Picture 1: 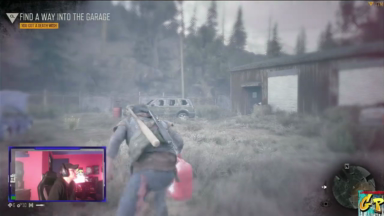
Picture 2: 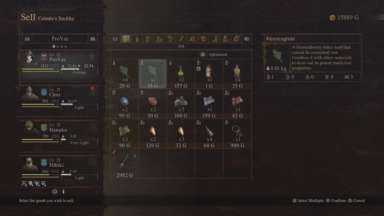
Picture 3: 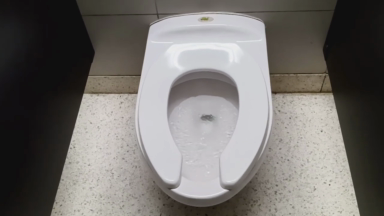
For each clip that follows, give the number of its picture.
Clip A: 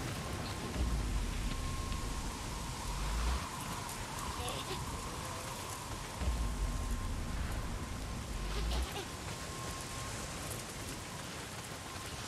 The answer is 1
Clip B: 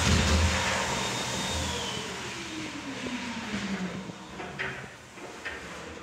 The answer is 3